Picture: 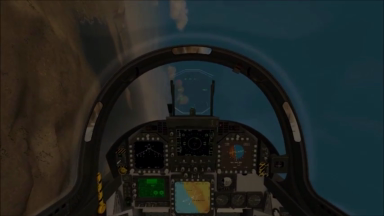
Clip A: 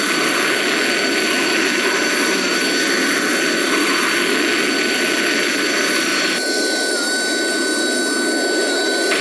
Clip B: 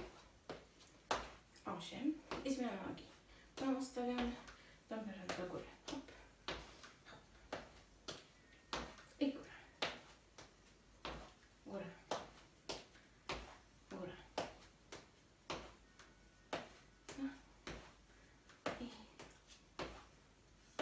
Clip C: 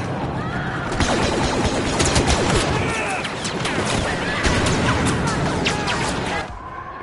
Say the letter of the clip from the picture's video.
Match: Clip A